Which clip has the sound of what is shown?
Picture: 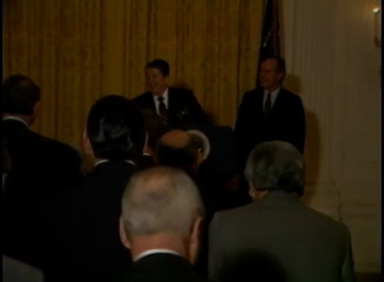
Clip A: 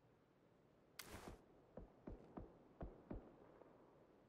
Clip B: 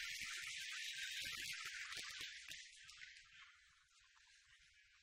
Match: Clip B